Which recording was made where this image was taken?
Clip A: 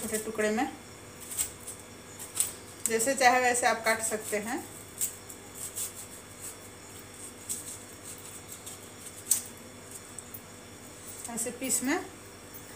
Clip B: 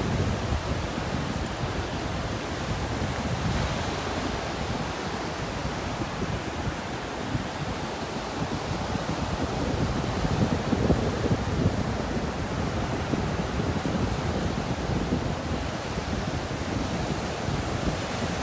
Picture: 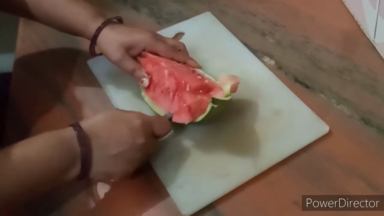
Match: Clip A